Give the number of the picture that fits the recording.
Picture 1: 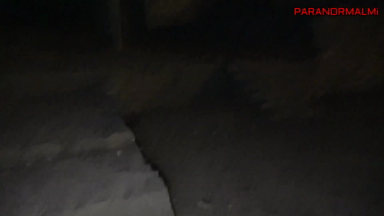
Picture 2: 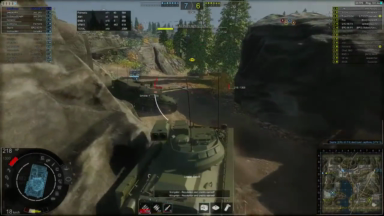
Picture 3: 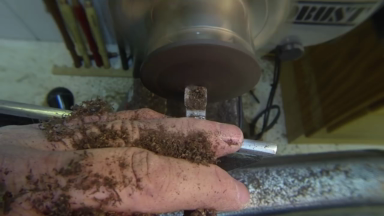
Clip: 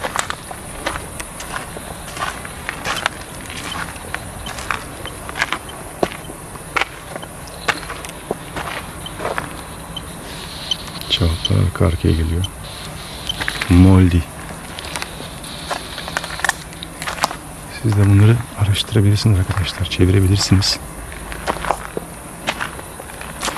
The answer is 1